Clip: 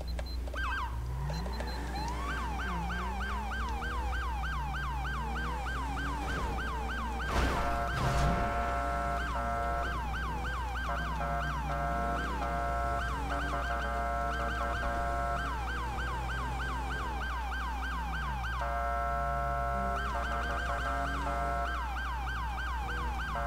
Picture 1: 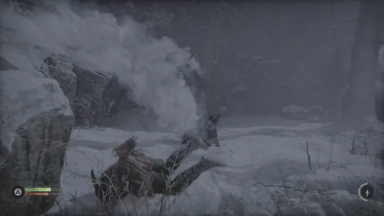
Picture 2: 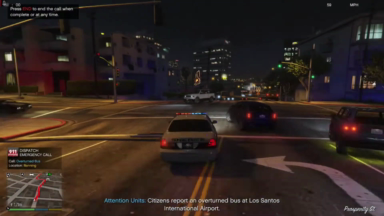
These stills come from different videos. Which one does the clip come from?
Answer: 2